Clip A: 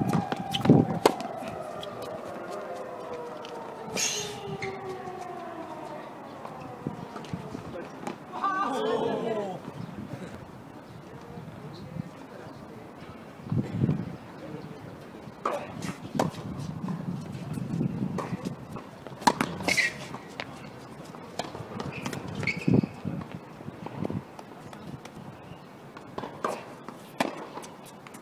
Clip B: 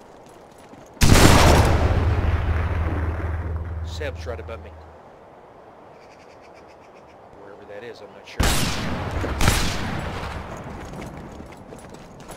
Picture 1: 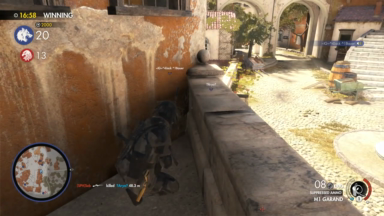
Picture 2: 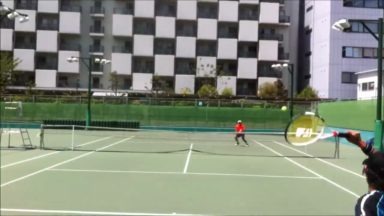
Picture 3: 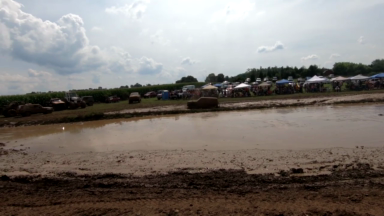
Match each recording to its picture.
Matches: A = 2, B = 1